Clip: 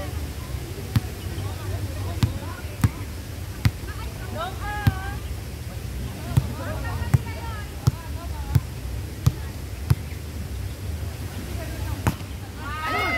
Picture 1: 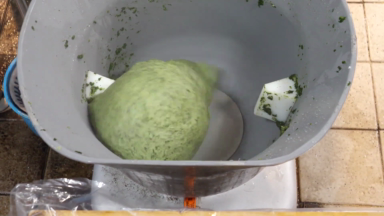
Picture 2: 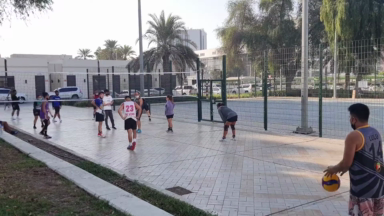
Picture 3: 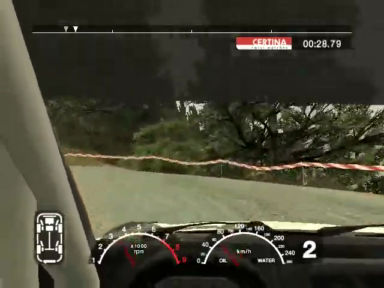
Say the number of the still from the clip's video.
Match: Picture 2